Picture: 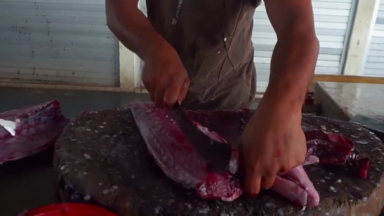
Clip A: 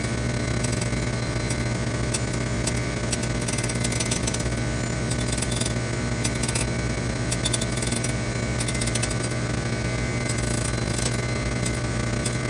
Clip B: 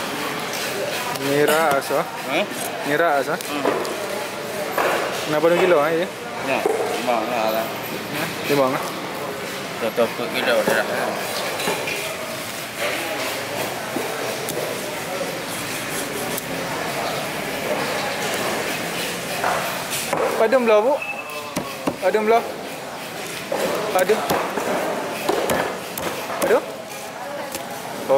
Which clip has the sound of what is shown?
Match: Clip B